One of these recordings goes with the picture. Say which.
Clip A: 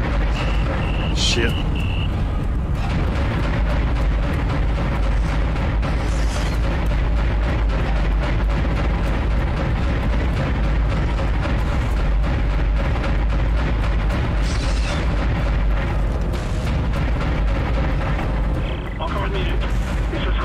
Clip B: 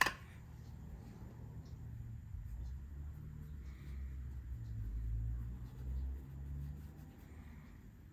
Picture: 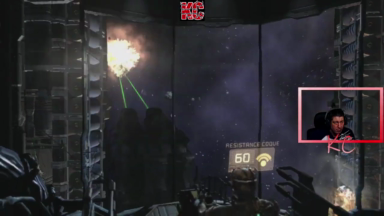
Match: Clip A